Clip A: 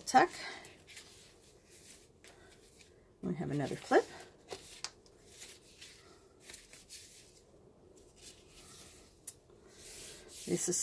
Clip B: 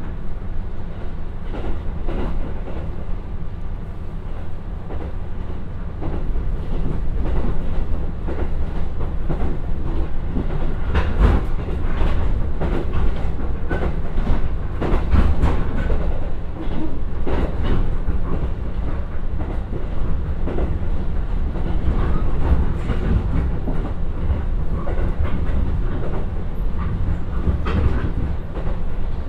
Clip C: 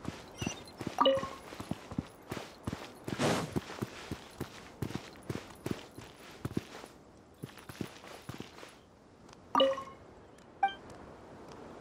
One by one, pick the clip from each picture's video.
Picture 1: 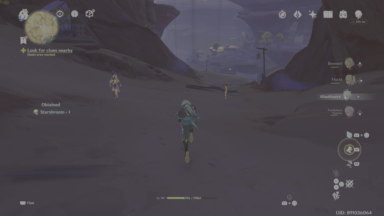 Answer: C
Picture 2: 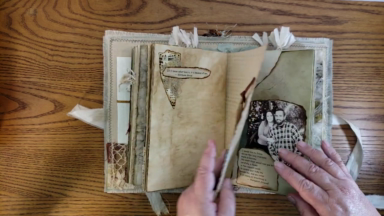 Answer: A